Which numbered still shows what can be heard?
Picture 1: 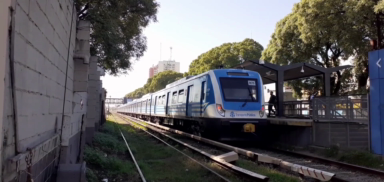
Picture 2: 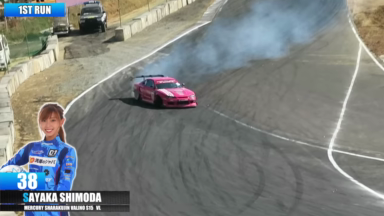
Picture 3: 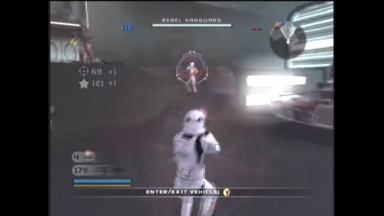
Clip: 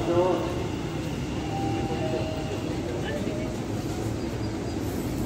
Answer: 1